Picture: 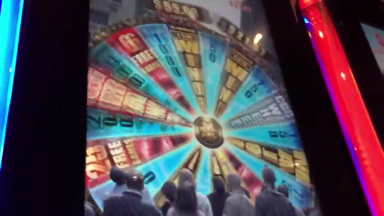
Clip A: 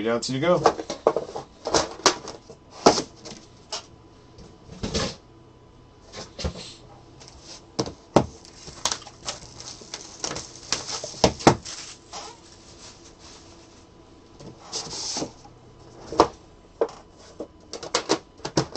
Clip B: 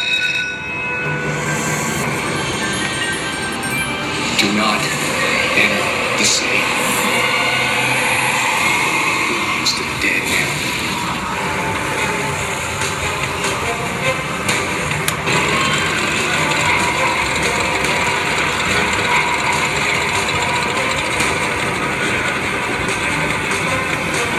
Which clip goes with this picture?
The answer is B